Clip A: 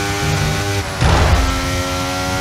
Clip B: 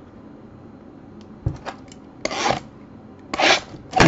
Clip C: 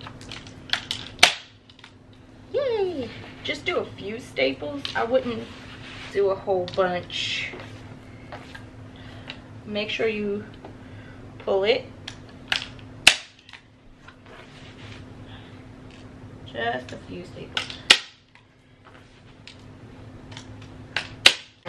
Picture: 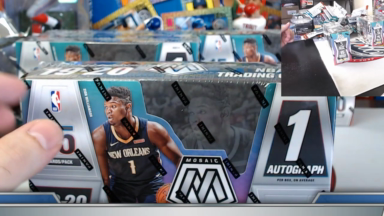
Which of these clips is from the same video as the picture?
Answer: B